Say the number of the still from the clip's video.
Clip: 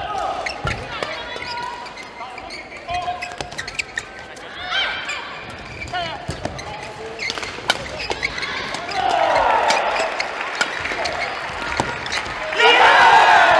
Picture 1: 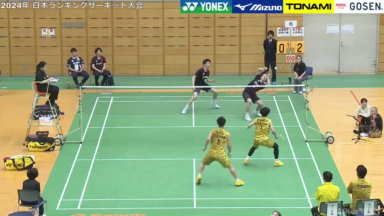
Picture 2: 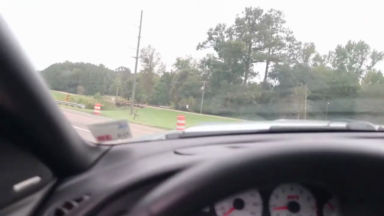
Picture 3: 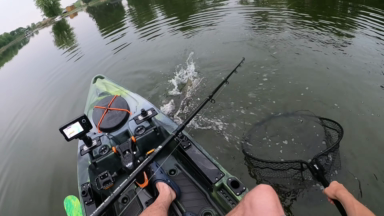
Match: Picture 1